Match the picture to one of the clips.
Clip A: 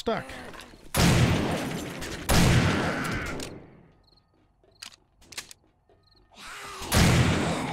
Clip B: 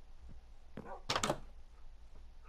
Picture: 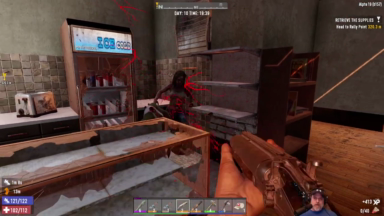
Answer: A